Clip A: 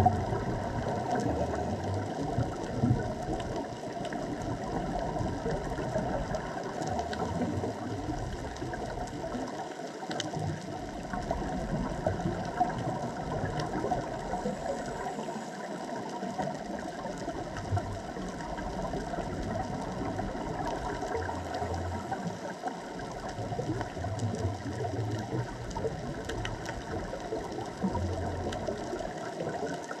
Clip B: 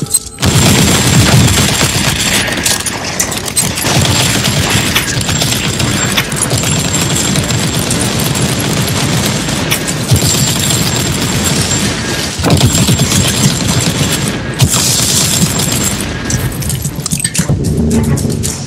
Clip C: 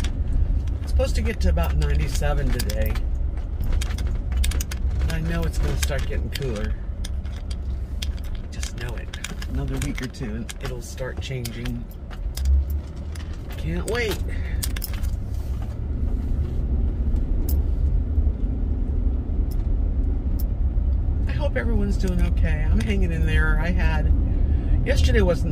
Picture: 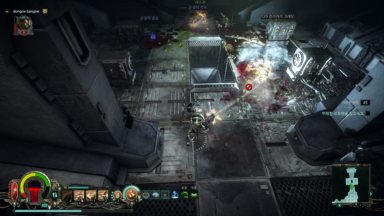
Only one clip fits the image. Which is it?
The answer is B